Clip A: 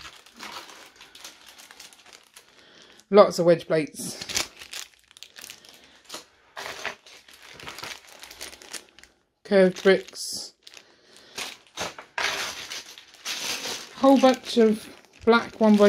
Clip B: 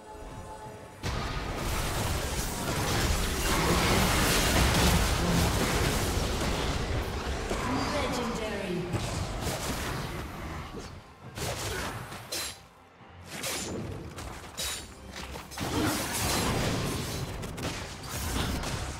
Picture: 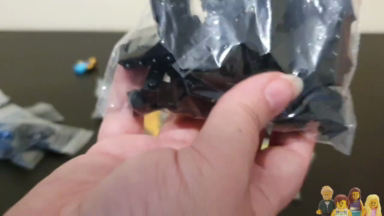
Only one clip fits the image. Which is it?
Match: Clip A